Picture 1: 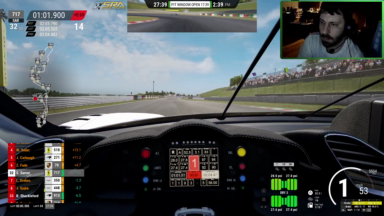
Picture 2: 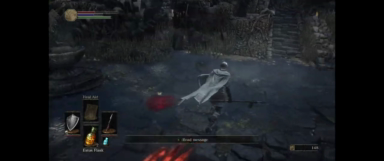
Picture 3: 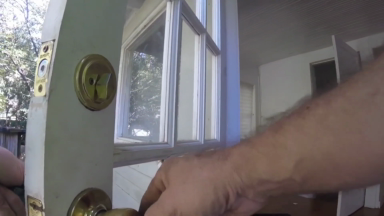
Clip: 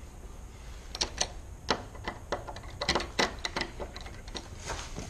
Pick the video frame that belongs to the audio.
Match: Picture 3